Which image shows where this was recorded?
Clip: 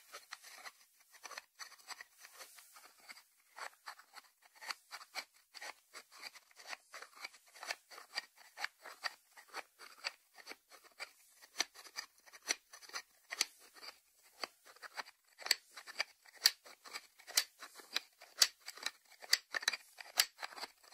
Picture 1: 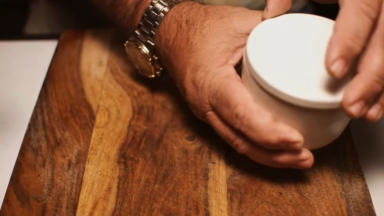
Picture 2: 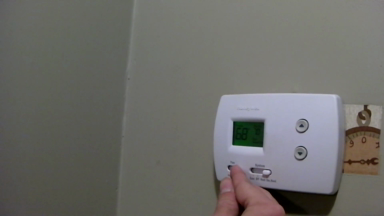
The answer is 1